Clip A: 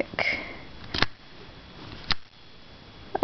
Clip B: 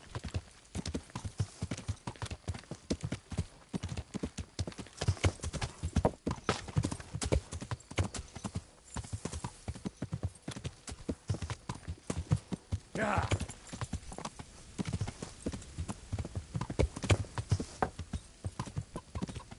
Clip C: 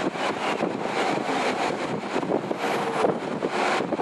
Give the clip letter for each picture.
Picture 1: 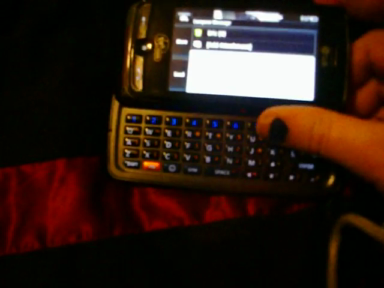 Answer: A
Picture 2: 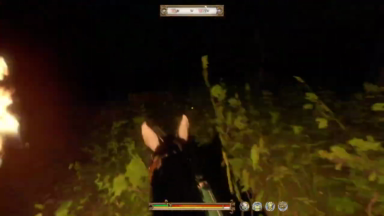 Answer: B